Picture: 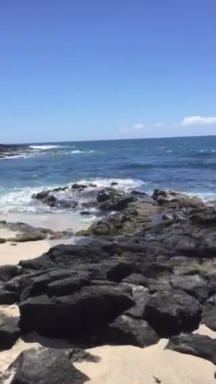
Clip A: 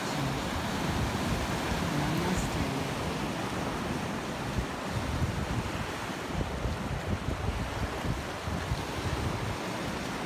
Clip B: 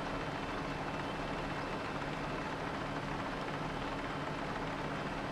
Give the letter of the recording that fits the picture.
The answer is A